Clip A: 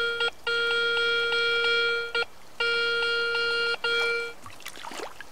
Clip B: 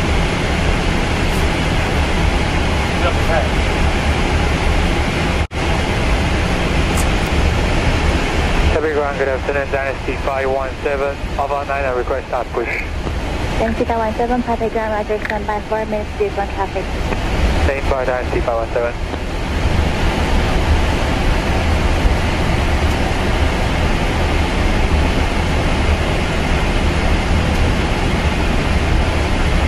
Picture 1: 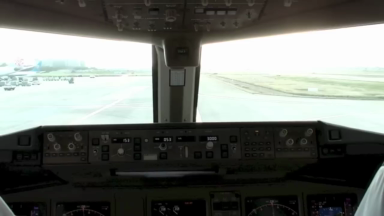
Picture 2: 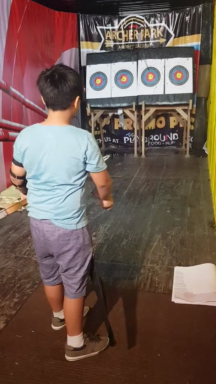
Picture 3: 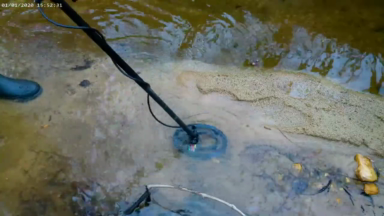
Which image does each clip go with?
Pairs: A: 3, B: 1